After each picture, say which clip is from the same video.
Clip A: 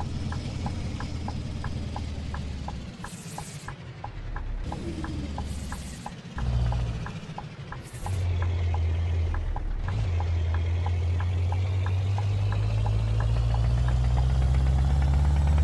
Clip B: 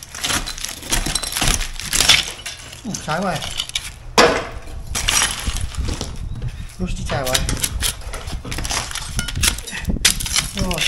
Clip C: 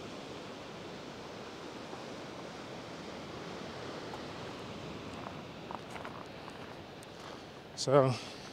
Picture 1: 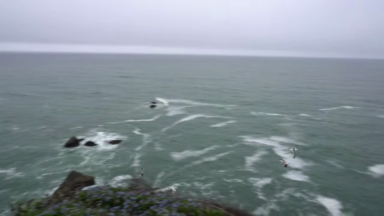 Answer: C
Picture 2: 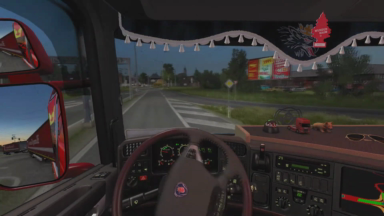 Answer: A